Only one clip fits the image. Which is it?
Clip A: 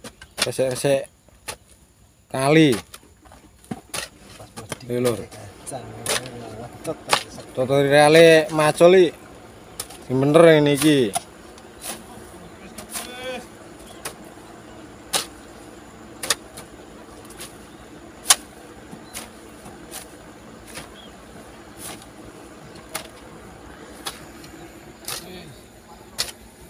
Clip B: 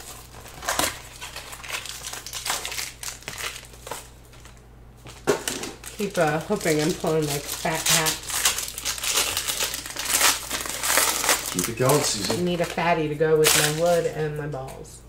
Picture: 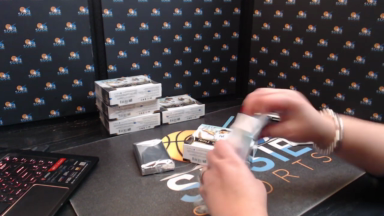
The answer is B